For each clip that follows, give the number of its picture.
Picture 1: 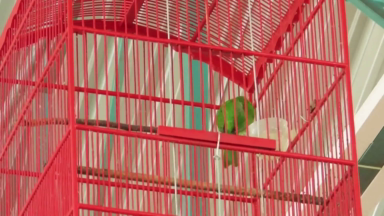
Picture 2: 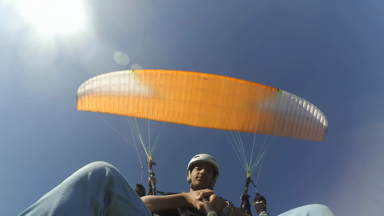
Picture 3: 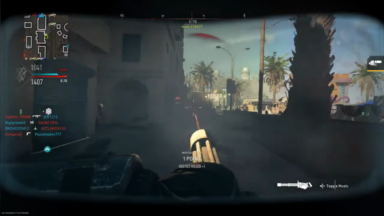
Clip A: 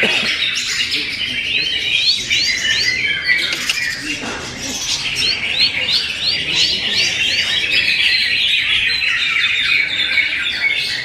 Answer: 1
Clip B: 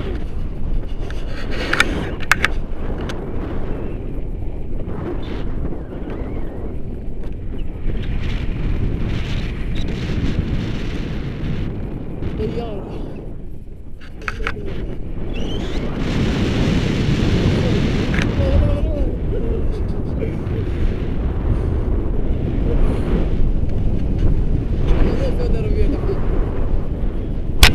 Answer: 2